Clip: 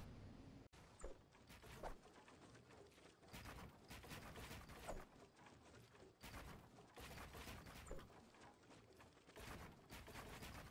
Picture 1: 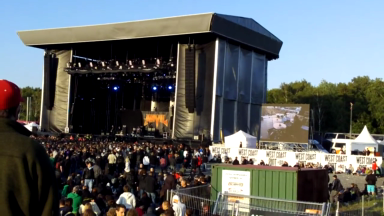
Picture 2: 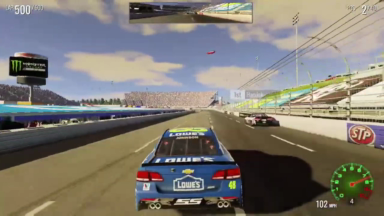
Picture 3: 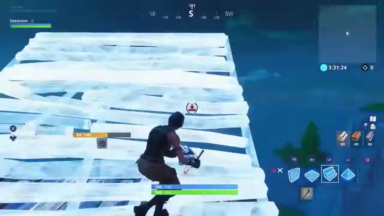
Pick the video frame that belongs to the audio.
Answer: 3